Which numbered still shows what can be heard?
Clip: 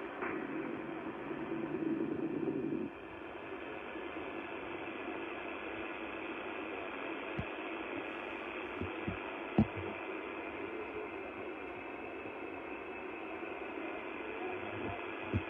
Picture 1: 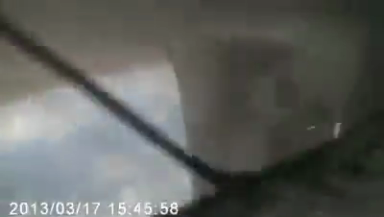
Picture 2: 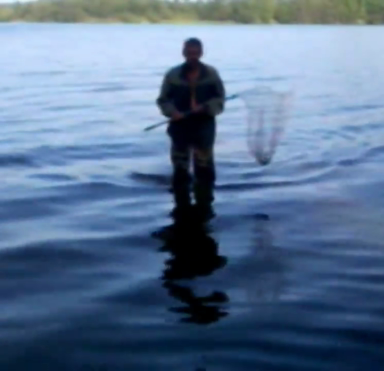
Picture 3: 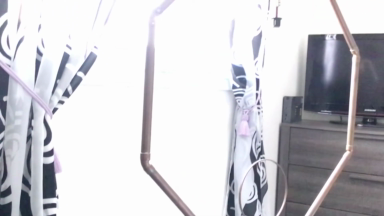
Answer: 3